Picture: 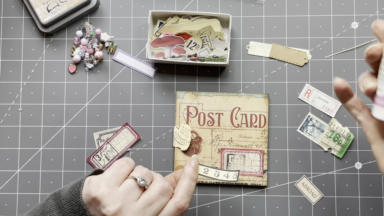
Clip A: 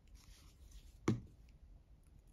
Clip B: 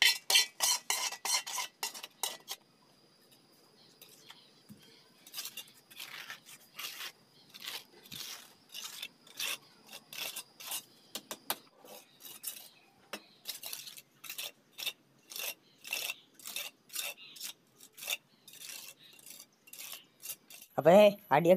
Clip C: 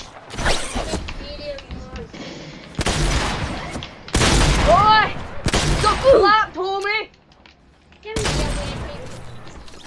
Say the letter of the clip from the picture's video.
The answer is A